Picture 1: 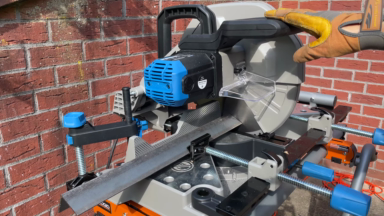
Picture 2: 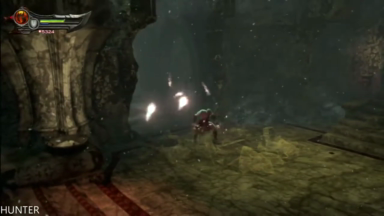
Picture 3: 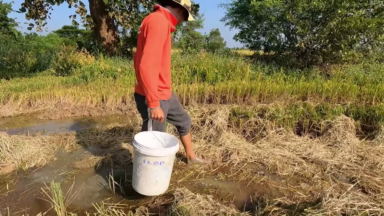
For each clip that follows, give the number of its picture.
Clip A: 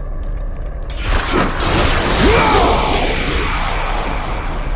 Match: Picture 2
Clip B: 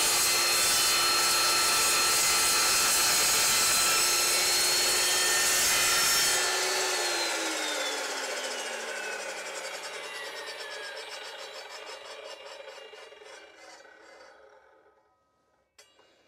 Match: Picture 1